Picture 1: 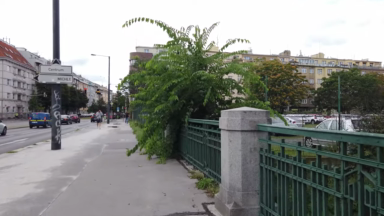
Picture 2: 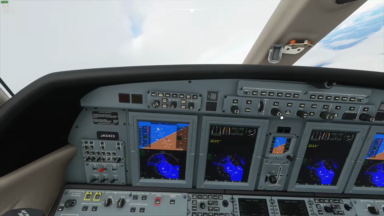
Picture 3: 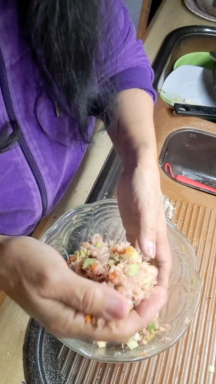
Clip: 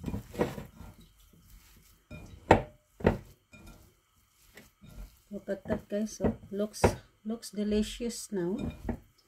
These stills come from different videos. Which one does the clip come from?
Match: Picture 3